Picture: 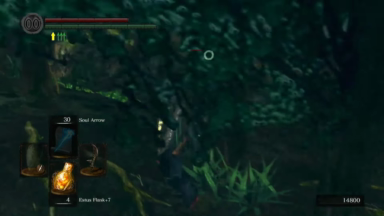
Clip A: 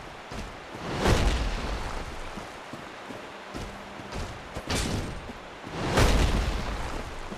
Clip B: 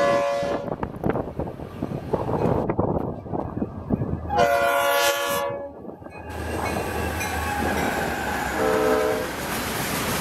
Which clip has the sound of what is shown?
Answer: A